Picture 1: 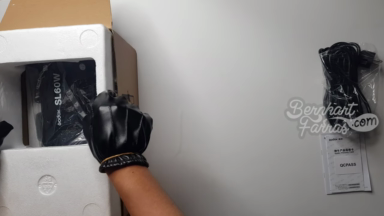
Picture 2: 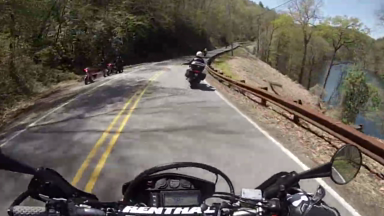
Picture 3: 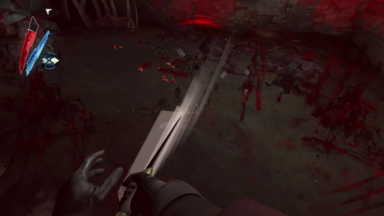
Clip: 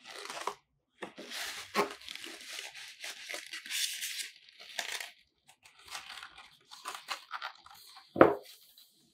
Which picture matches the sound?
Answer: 1